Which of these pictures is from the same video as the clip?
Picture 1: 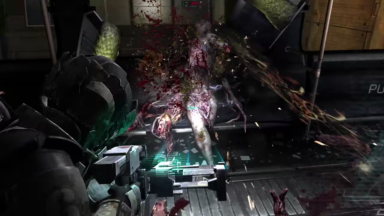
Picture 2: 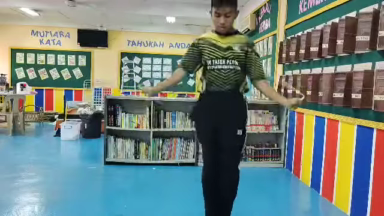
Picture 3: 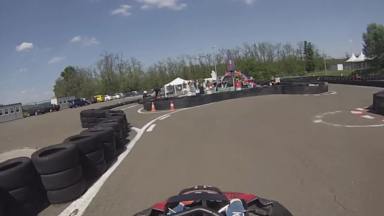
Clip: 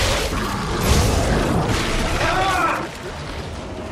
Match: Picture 1